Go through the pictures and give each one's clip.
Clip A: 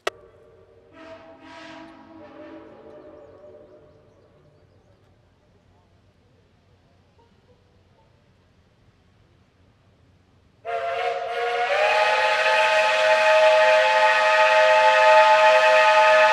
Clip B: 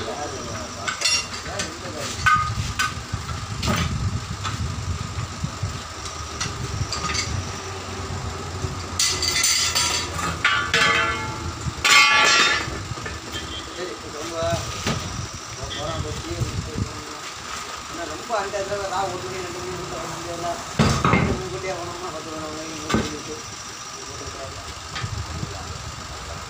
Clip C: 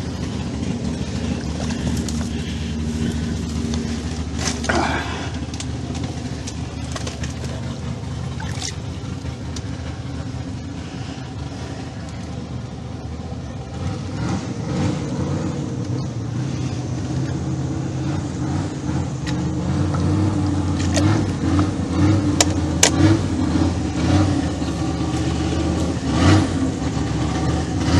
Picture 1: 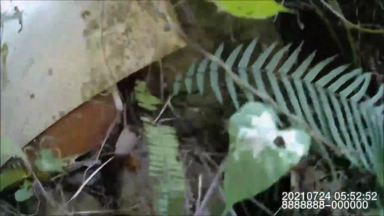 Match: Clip C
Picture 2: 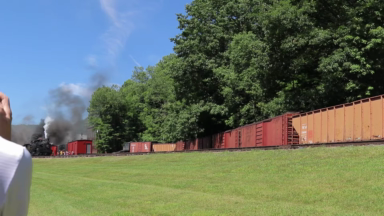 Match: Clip A